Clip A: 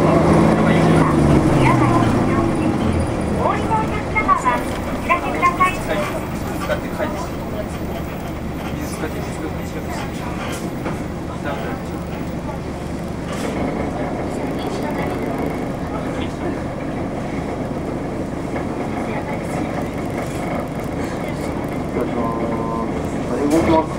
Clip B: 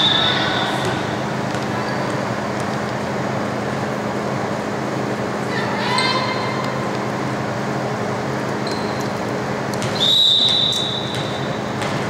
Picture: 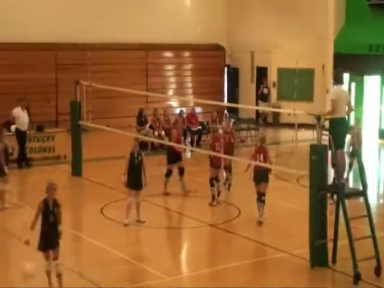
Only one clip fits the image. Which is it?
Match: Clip B